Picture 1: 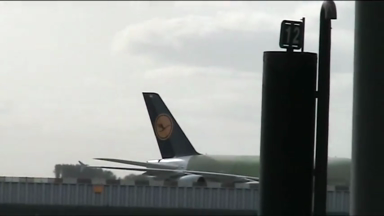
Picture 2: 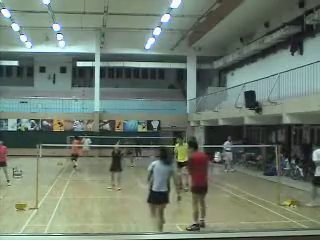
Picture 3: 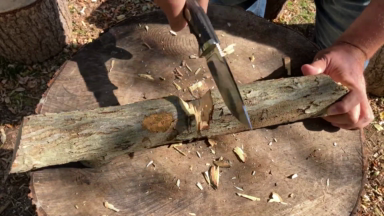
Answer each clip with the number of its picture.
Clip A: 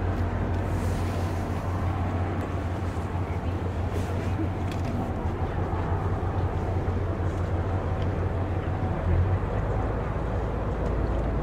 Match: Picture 1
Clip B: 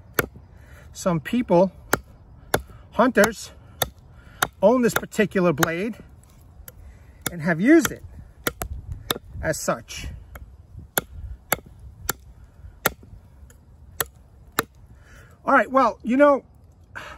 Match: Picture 3